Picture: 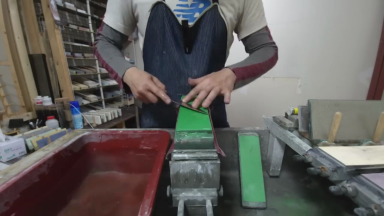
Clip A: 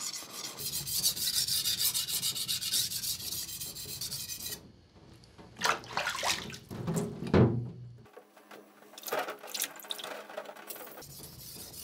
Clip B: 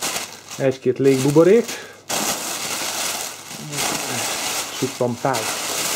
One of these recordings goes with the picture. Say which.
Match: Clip A